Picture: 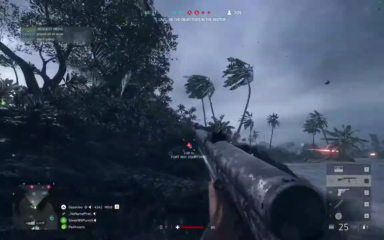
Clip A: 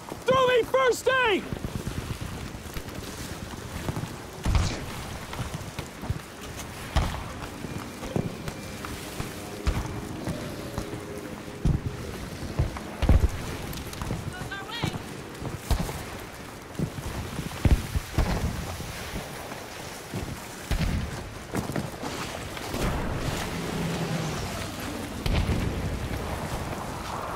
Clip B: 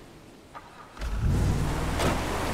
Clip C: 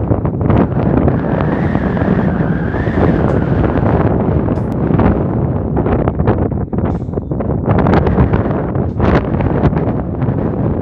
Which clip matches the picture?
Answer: A